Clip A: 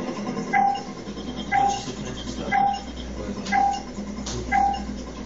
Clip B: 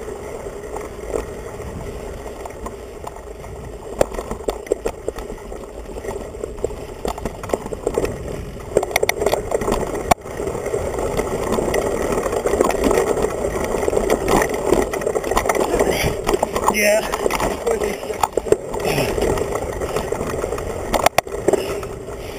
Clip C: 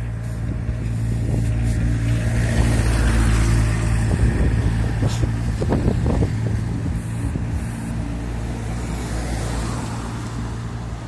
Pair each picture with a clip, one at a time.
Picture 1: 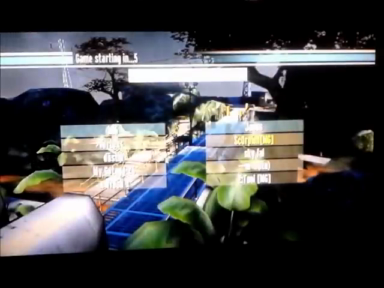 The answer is A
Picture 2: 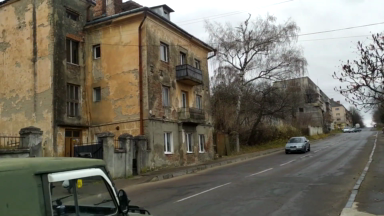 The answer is C